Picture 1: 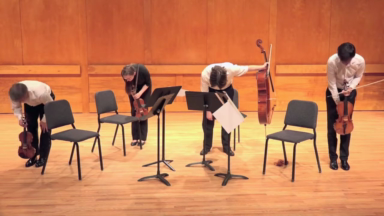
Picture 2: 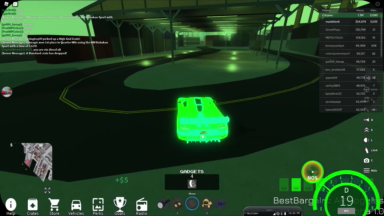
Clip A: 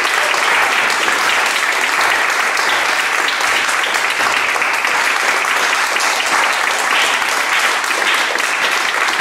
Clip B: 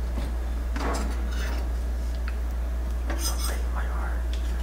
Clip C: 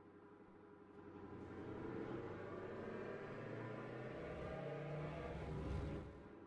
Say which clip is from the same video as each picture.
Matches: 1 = A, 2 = C